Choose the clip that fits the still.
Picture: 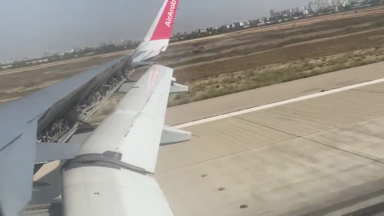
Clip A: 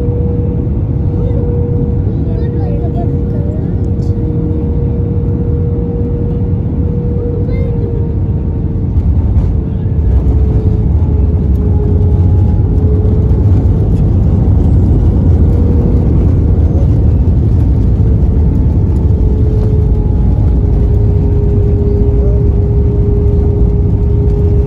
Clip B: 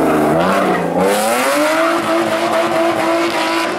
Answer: A